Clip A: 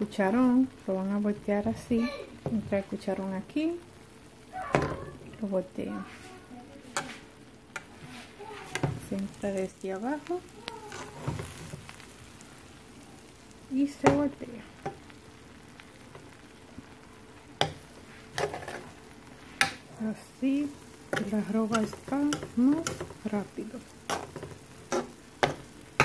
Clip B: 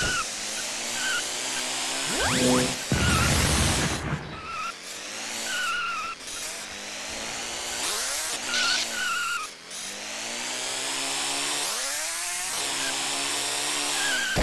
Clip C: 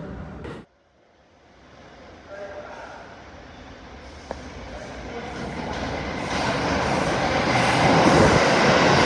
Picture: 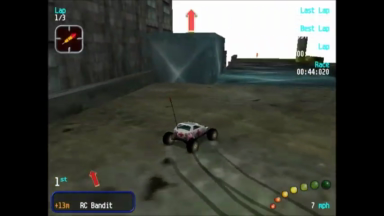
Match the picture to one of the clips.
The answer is B